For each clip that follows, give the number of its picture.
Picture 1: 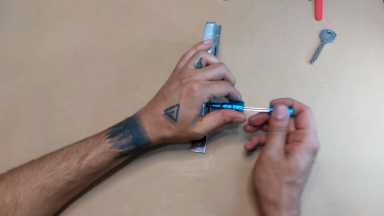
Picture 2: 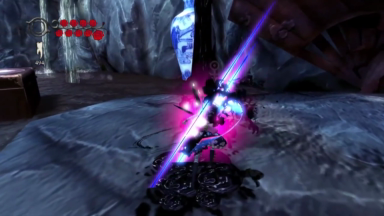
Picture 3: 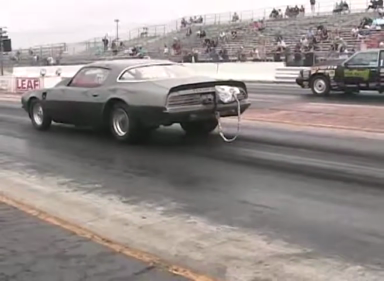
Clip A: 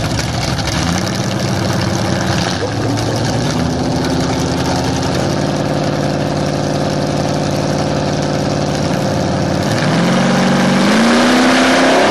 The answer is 3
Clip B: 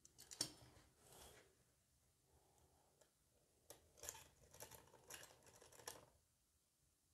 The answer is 1